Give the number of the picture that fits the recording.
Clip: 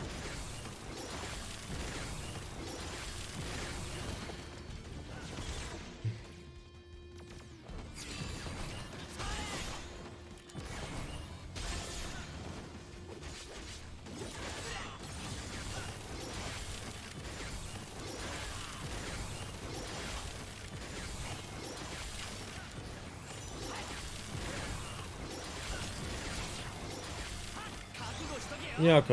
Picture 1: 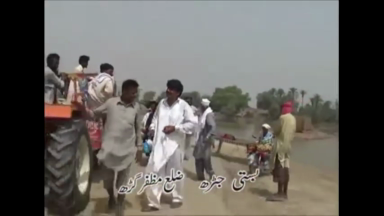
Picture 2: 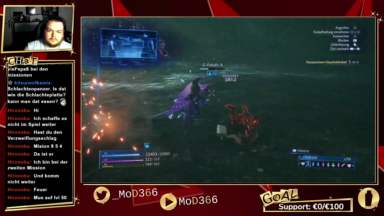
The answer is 2